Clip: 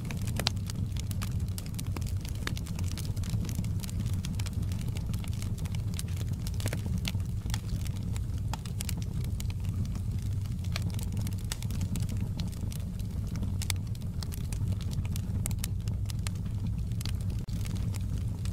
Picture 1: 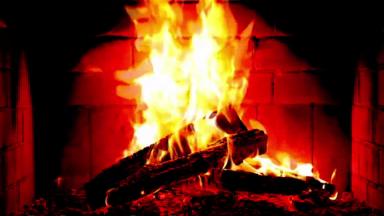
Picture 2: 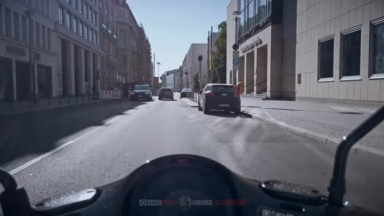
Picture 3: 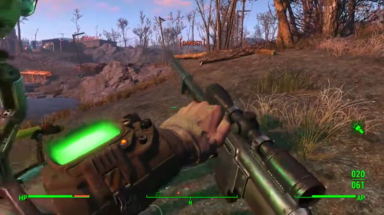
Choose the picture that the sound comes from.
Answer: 1